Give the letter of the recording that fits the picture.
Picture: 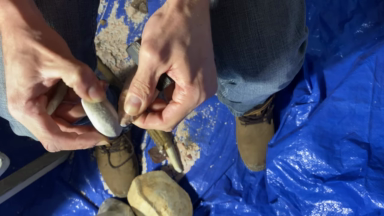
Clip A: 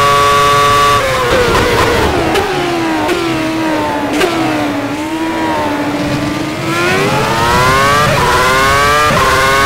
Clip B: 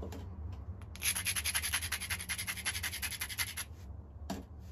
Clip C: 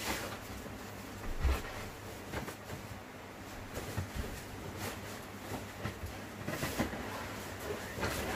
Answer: B